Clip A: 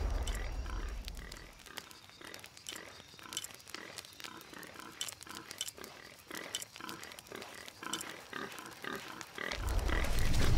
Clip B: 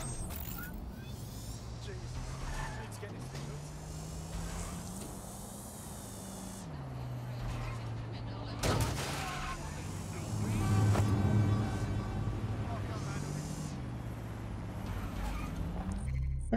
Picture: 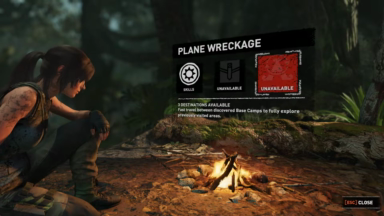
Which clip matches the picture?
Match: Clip A